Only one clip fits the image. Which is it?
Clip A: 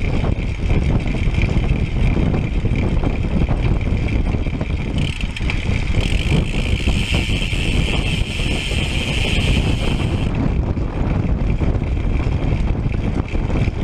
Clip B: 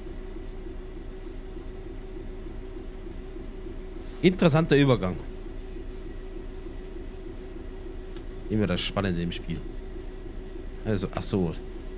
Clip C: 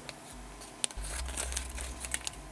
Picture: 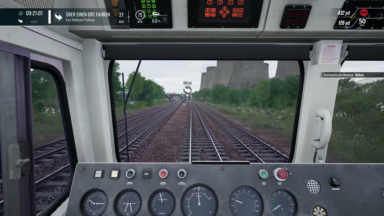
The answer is B